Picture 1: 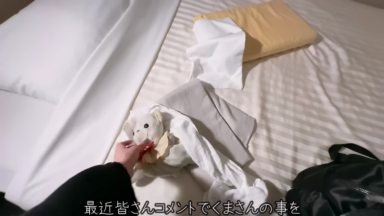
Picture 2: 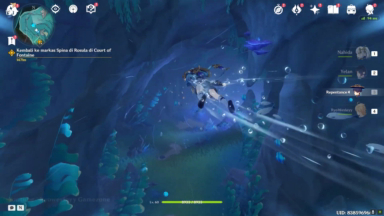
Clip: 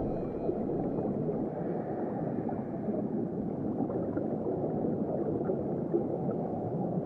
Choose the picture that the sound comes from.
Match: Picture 2